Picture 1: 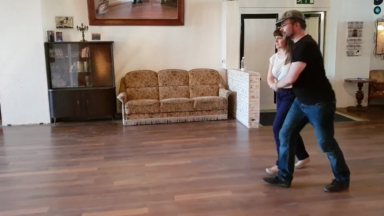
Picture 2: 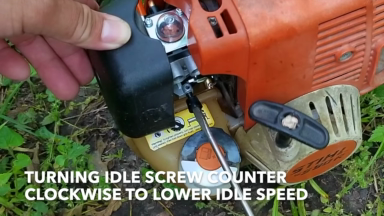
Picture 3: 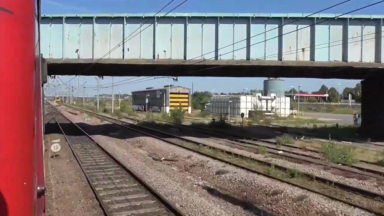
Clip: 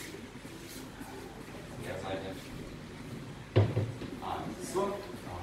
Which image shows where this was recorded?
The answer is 1